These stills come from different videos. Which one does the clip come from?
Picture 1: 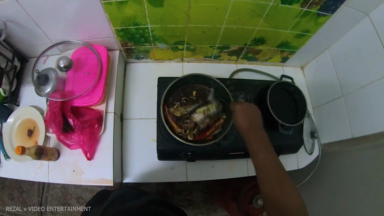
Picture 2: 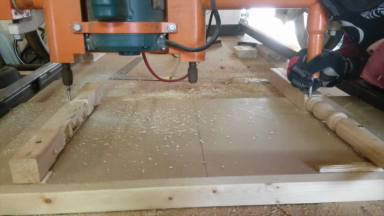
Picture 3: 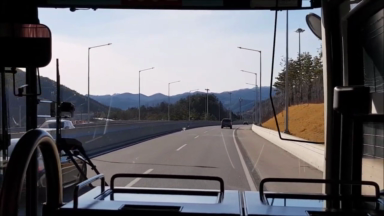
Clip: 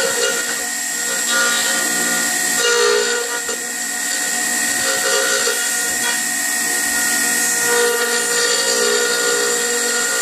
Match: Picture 2